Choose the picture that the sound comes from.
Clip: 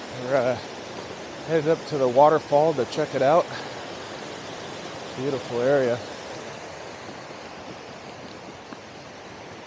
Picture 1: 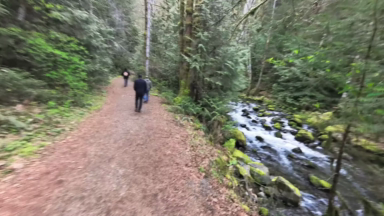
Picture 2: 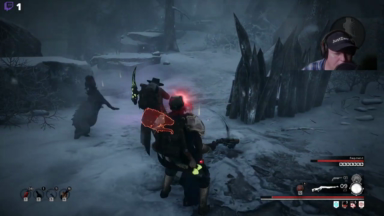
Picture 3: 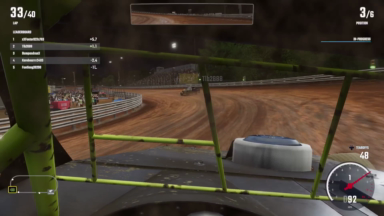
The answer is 1